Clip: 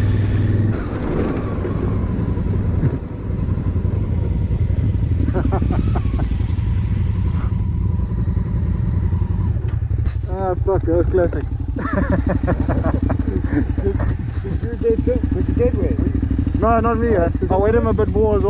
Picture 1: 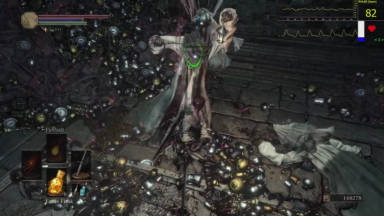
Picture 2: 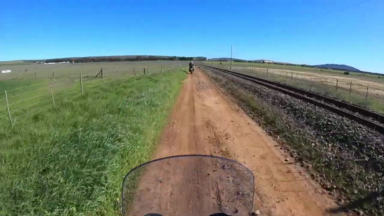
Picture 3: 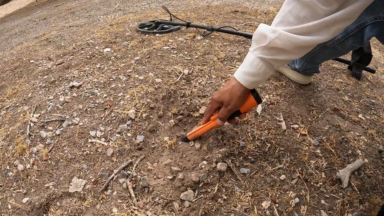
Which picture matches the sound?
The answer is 2